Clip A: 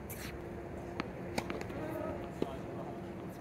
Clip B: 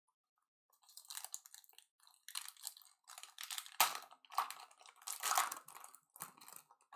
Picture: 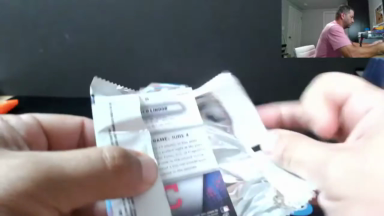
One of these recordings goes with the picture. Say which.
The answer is B